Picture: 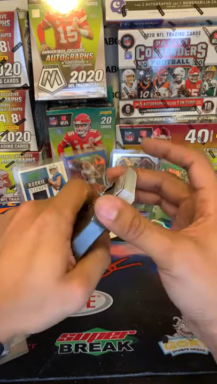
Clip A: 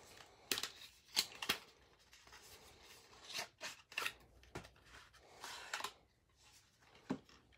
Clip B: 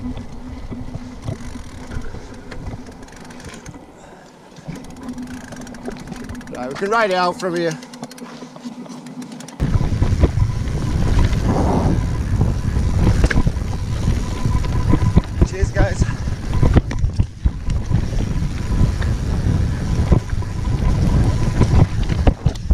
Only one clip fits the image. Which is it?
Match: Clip A